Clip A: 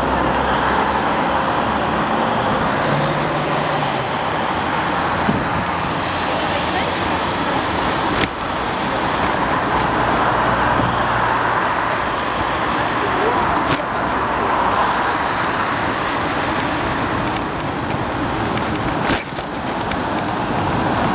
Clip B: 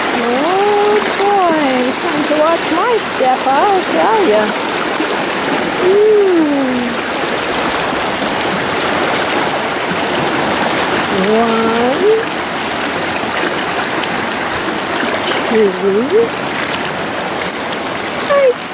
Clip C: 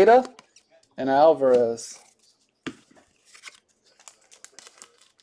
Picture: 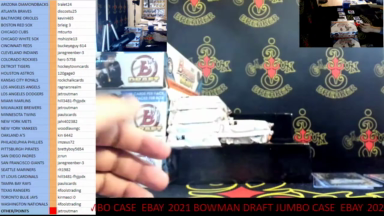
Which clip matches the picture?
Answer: C